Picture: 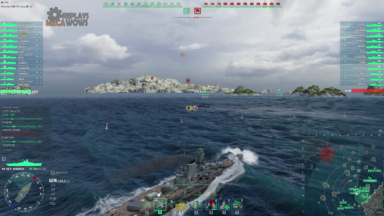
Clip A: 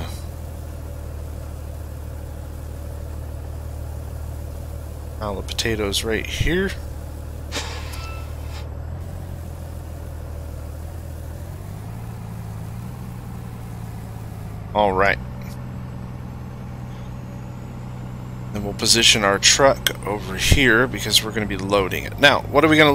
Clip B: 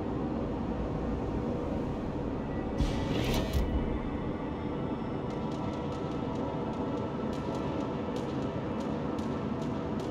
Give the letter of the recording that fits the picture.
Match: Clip B